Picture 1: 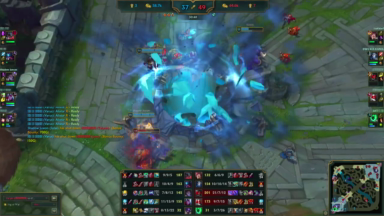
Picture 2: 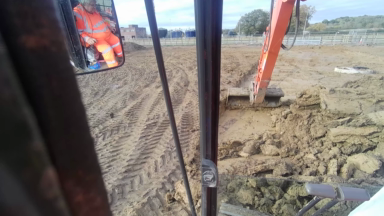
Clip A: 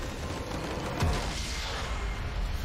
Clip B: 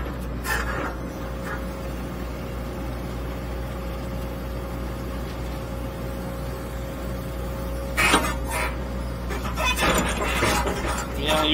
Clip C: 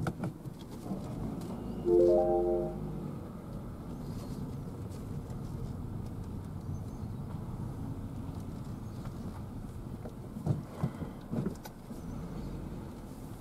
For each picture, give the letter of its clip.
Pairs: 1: A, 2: B